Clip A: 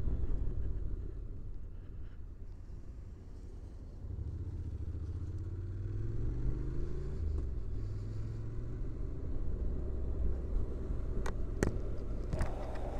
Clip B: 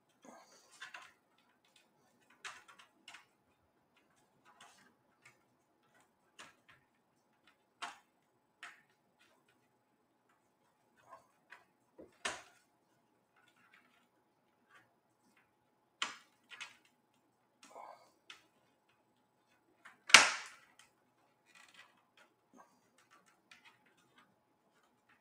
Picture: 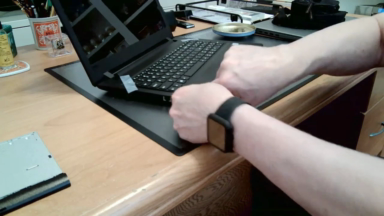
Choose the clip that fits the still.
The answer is B